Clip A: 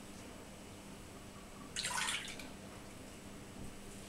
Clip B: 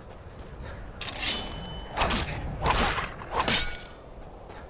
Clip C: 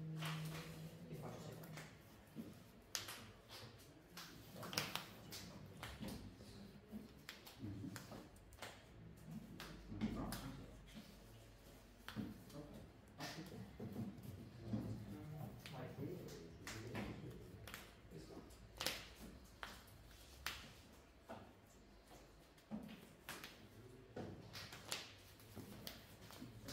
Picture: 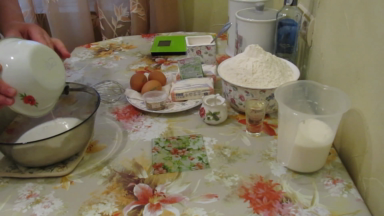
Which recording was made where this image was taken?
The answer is A